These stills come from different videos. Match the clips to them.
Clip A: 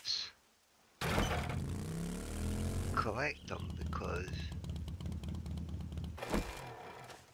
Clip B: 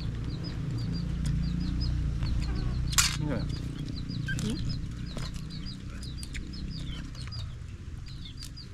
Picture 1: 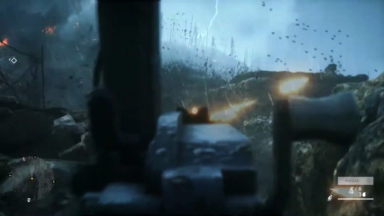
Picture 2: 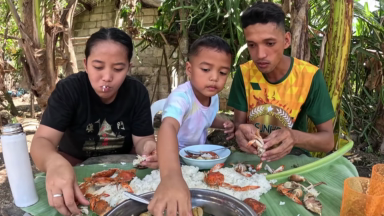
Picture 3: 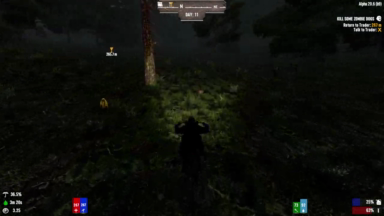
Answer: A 3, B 2